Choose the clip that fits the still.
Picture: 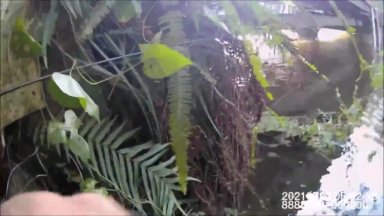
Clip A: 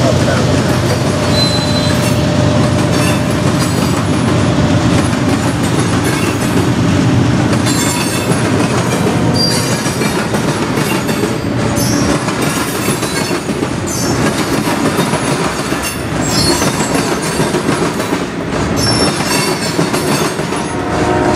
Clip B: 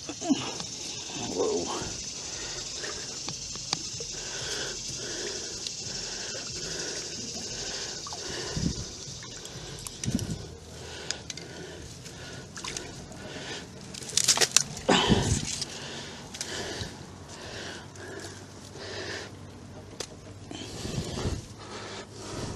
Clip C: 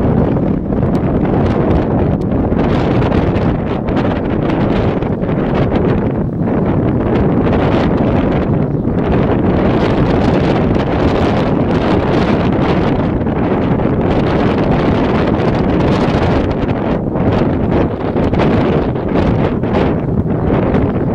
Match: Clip B